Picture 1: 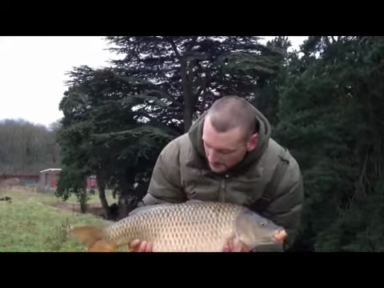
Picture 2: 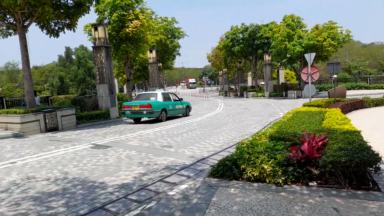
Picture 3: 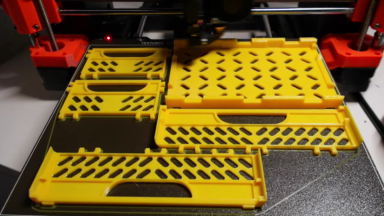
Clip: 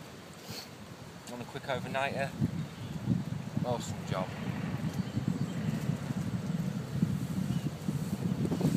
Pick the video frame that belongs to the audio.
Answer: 1